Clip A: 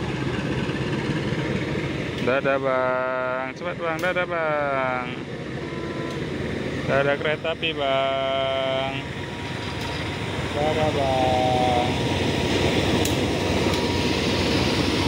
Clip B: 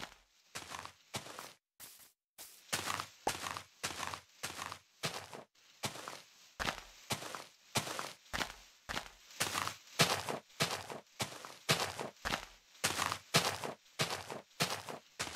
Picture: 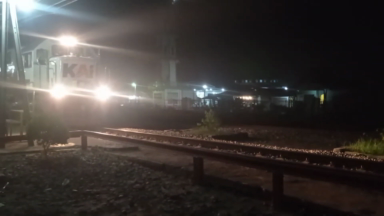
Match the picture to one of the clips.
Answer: A